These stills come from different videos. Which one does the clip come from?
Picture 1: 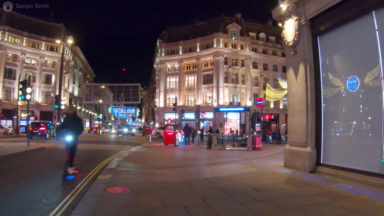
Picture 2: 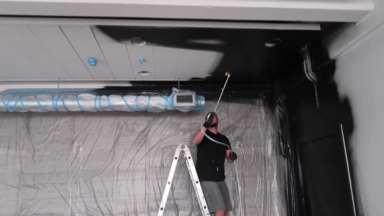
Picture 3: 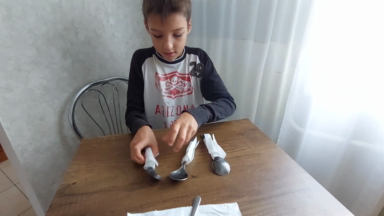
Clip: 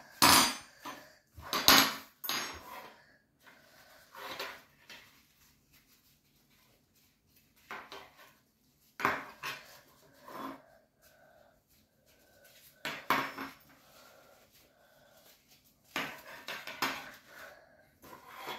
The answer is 3